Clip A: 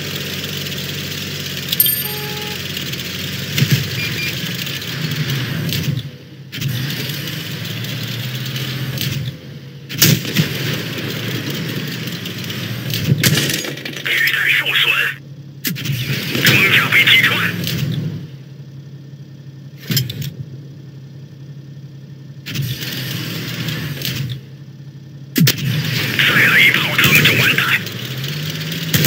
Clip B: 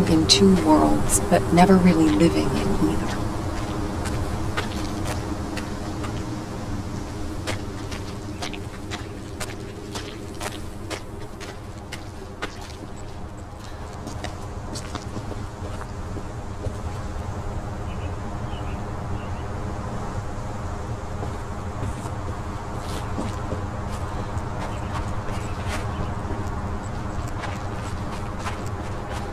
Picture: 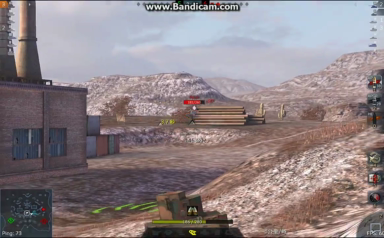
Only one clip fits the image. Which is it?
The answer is A